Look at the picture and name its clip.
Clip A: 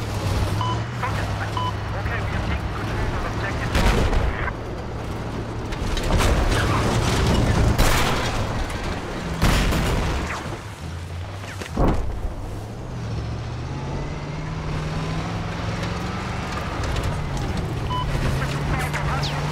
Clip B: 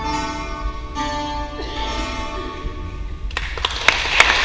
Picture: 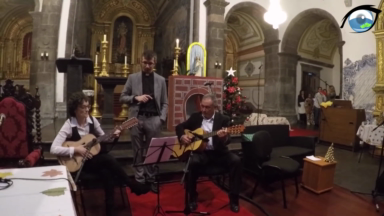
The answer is B